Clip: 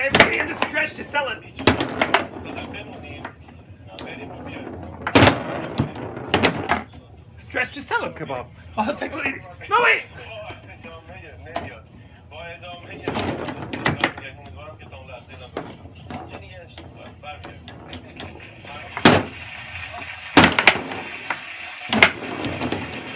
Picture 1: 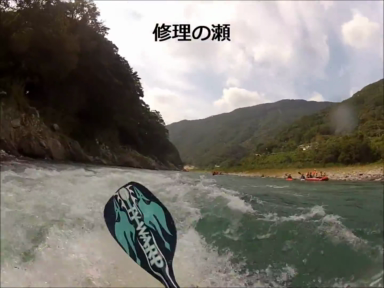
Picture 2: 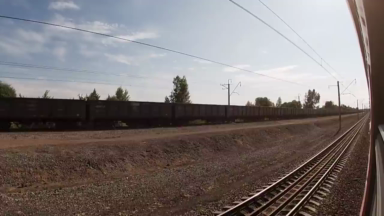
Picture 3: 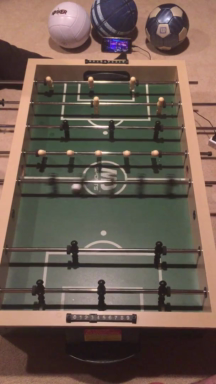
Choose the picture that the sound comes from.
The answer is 3